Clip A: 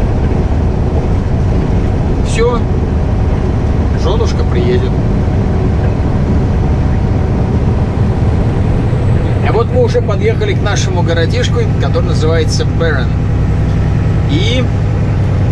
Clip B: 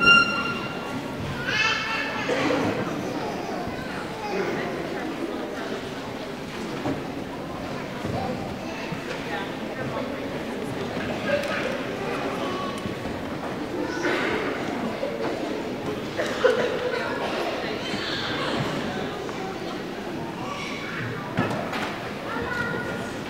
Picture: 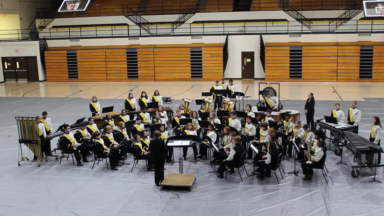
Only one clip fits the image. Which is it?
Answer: B